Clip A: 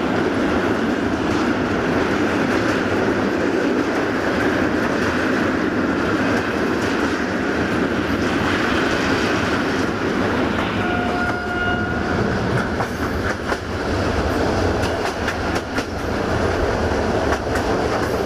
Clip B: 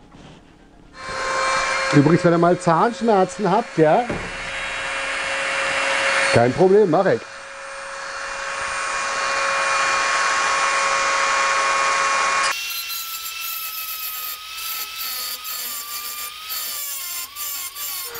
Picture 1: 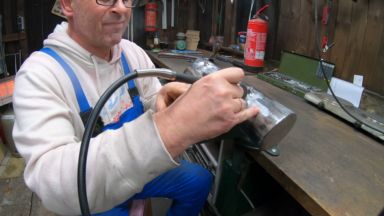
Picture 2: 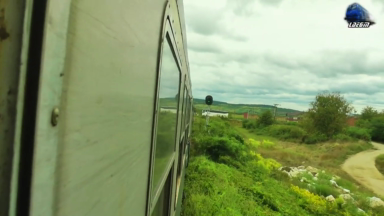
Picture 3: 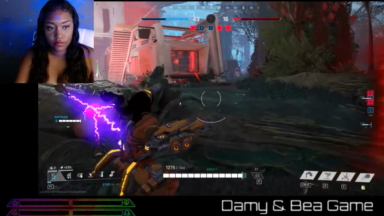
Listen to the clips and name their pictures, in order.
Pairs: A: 2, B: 1